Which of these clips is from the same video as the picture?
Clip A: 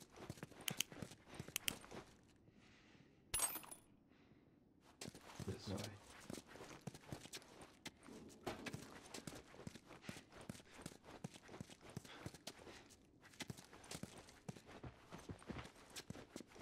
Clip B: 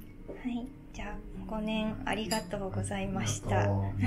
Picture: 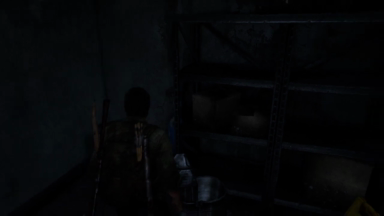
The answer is A